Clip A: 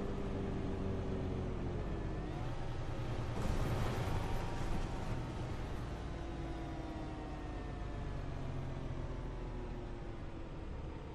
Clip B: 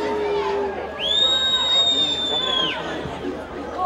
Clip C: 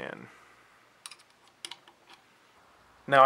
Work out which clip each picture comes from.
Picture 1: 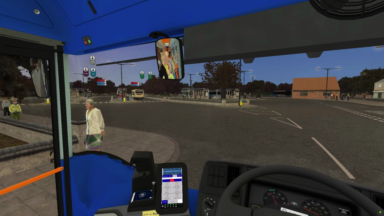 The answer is A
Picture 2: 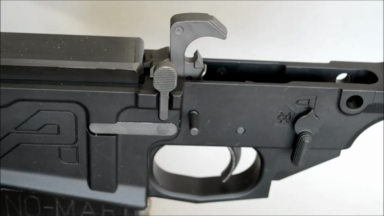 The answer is C